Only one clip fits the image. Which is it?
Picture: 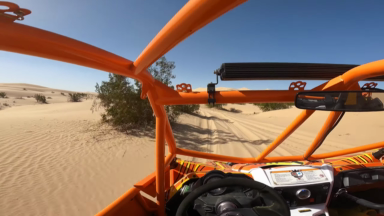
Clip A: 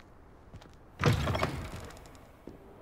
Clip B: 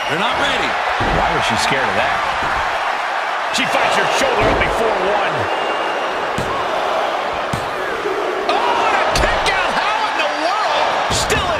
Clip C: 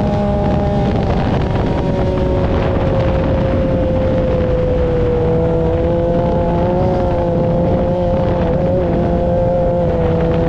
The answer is C